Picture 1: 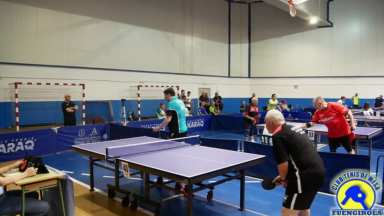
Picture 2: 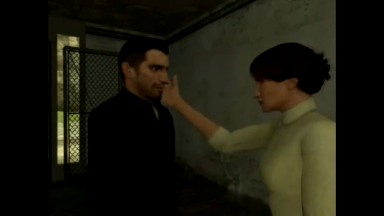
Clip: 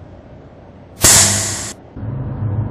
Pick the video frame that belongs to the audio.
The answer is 2